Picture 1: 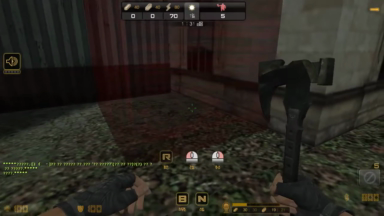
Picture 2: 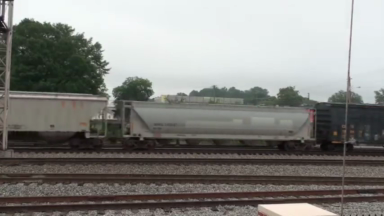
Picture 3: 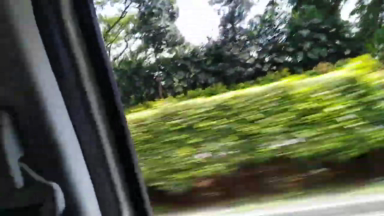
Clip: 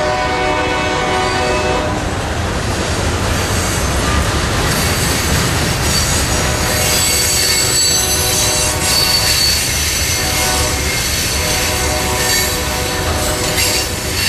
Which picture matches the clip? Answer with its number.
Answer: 2